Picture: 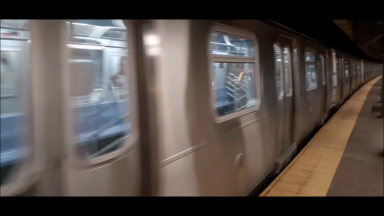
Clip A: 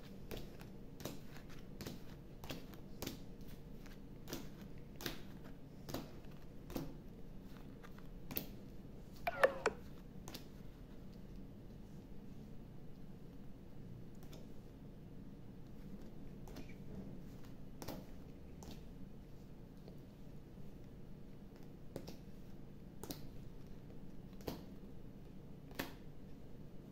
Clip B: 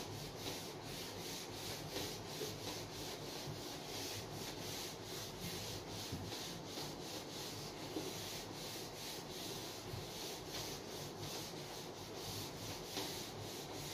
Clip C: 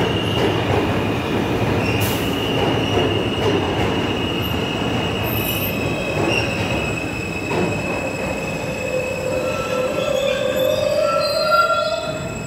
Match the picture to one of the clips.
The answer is C